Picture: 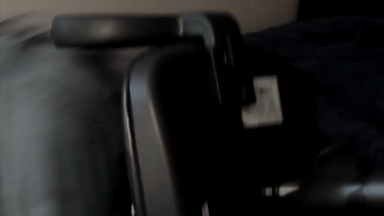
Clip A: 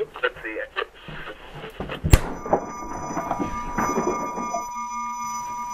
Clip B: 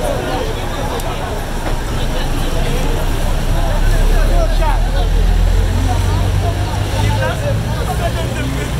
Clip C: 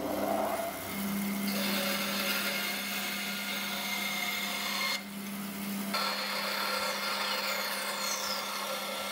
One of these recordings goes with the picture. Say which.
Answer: A